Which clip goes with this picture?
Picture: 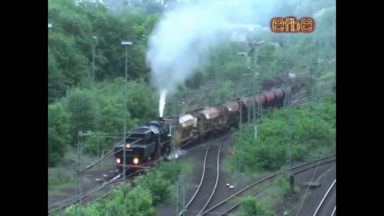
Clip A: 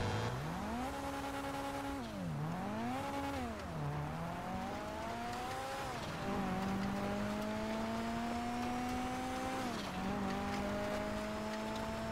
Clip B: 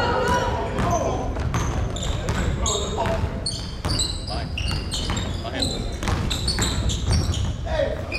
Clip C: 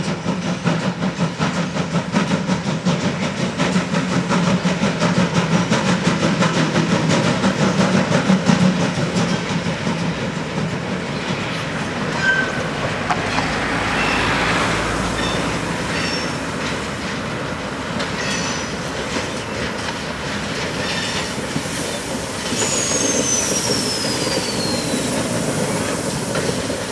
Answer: C